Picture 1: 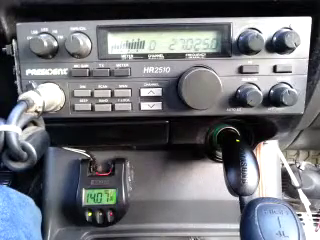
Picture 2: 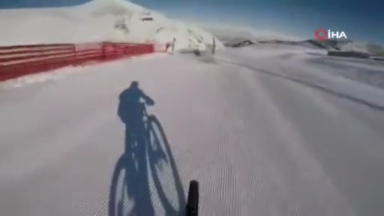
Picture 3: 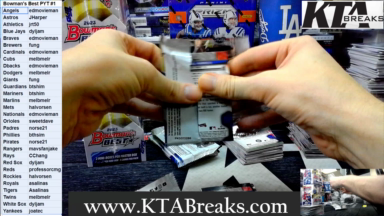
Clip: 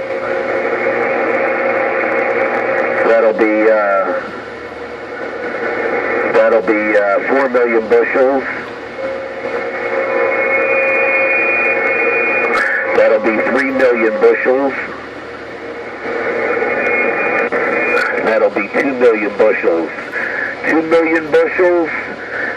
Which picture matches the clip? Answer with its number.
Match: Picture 1